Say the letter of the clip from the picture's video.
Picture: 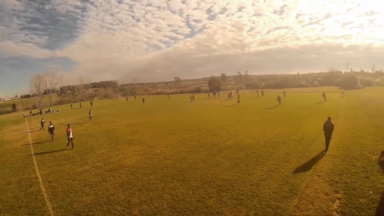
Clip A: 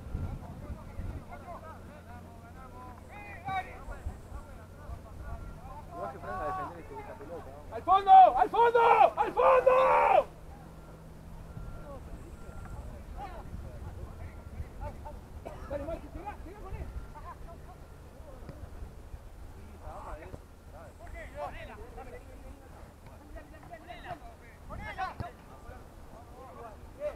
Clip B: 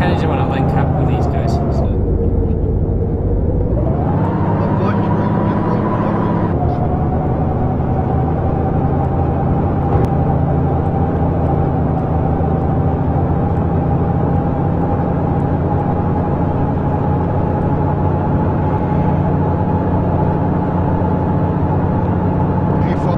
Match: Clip A